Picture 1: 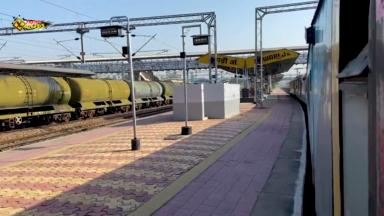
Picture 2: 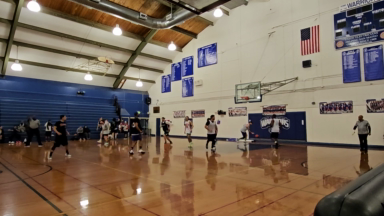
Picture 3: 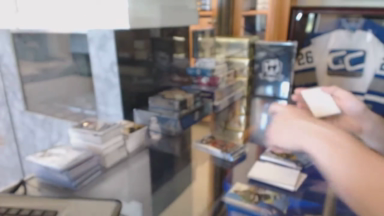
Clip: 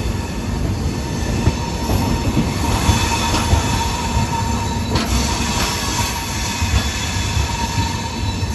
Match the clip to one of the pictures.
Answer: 1